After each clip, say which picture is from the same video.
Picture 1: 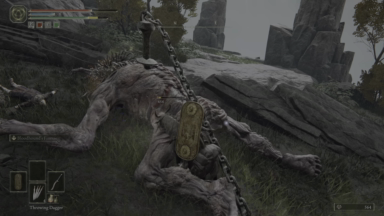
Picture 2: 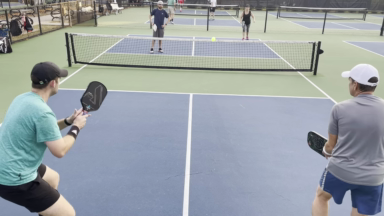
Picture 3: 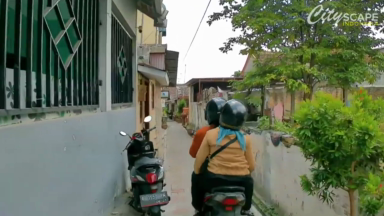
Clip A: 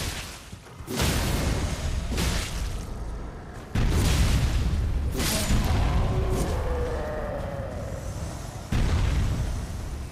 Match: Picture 1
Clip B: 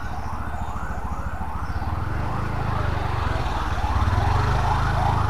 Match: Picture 3